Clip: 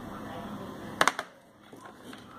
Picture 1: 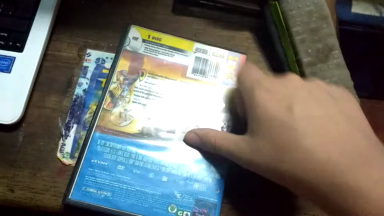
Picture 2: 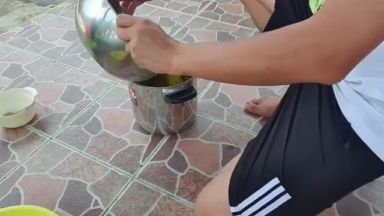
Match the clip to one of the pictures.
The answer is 1